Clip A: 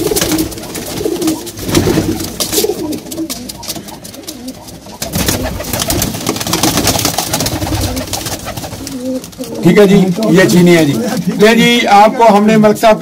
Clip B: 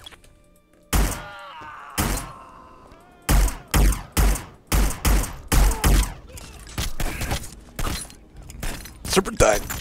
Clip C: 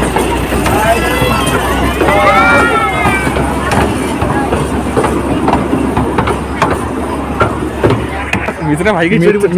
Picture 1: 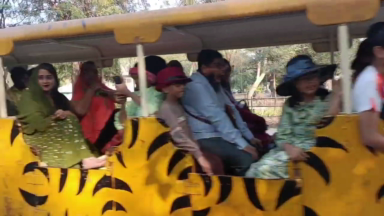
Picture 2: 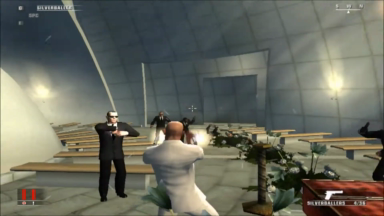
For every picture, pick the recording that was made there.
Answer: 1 C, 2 B